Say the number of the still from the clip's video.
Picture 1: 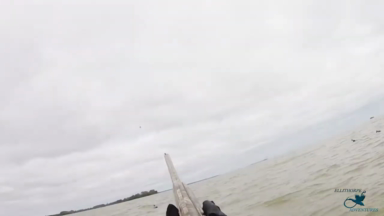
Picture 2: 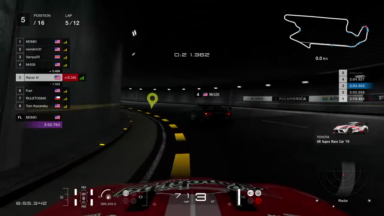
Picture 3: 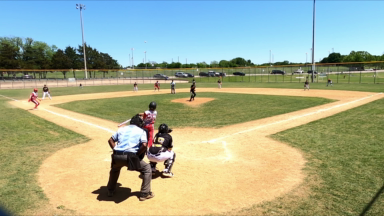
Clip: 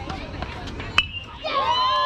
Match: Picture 3